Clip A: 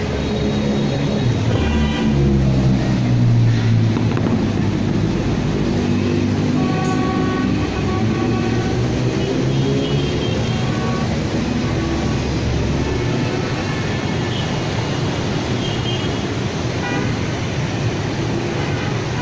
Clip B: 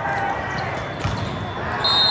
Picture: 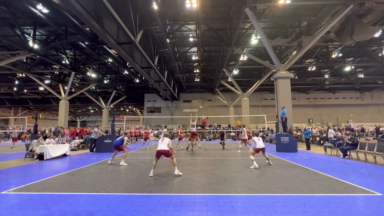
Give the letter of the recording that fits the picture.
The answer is B